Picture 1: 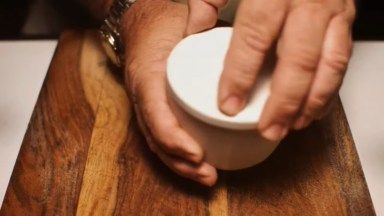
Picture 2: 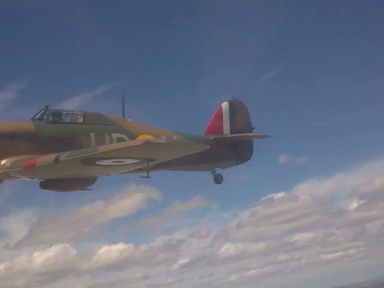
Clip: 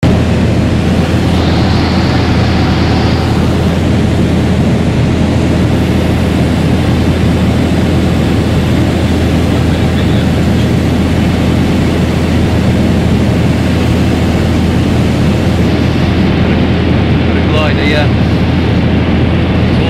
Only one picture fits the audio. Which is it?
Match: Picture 2